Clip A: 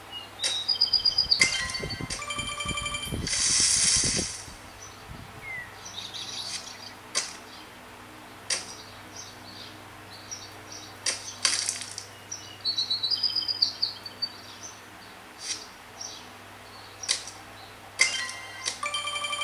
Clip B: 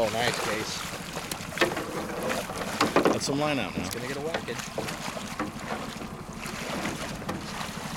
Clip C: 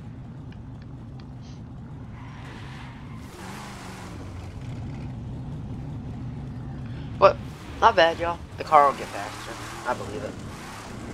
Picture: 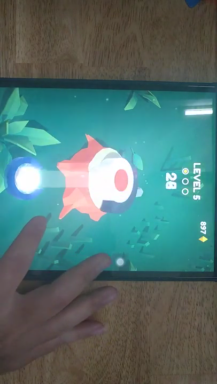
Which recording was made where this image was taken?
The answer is A